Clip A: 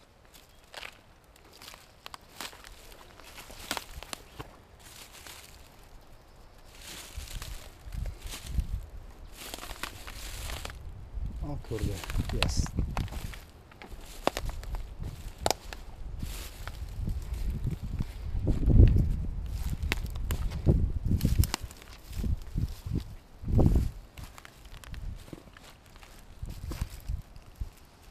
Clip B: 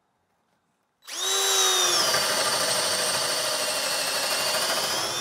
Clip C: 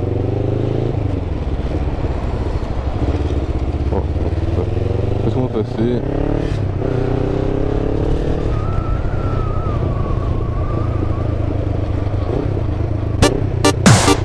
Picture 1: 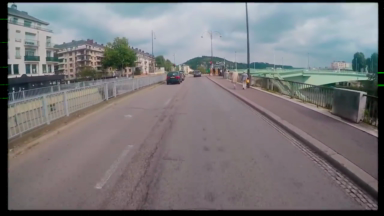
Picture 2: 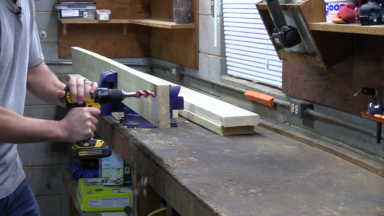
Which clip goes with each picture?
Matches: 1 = C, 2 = B